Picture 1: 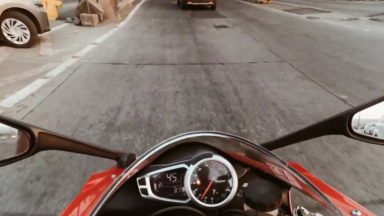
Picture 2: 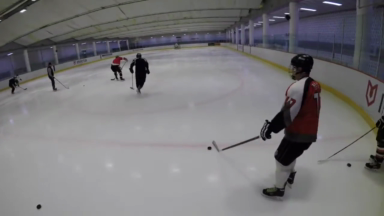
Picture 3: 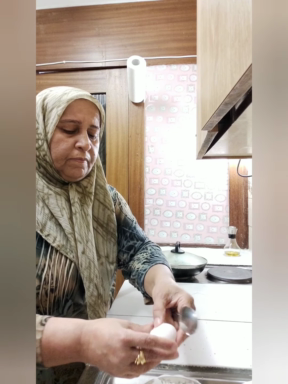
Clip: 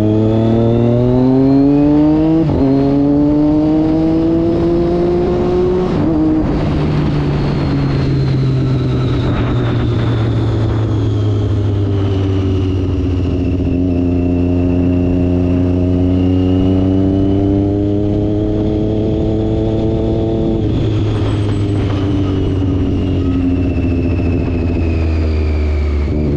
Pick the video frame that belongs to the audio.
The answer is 1